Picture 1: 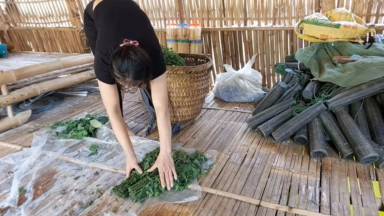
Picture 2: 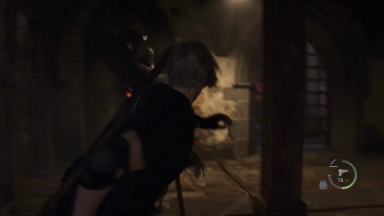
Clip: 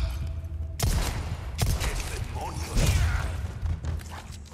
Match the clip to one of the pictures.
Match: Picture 2